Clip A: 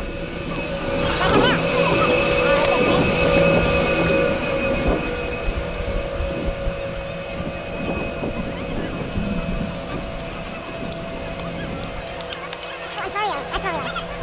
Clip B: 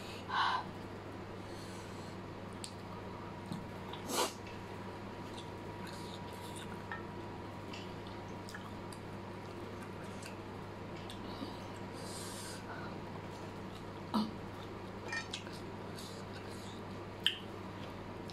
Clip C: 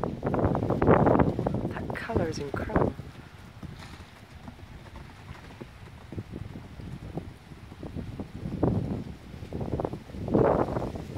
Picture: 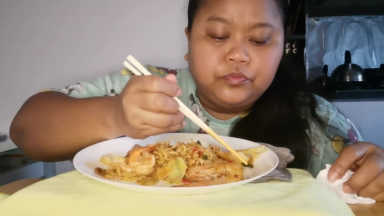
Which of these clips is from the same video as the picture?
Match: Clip B